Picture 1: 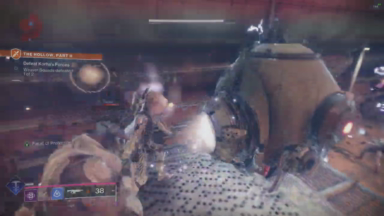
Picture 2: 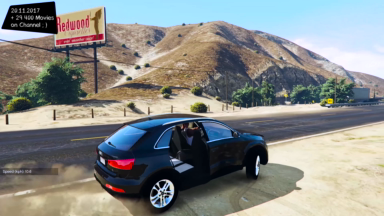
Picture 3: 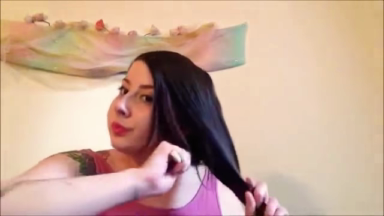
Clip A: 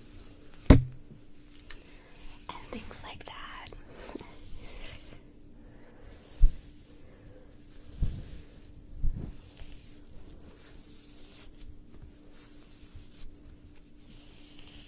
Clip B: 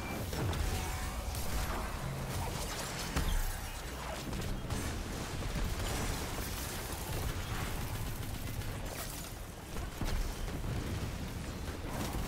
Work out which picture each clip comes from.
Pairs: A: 3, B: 1